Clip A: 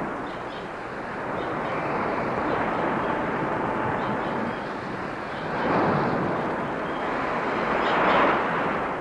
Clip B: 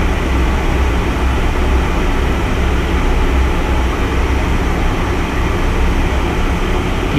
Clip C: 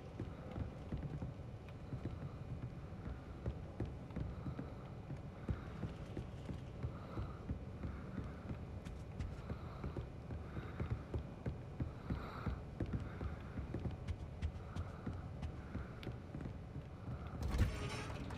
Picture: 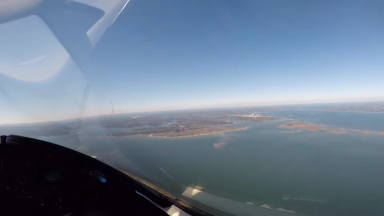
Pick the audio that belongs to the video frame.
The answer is B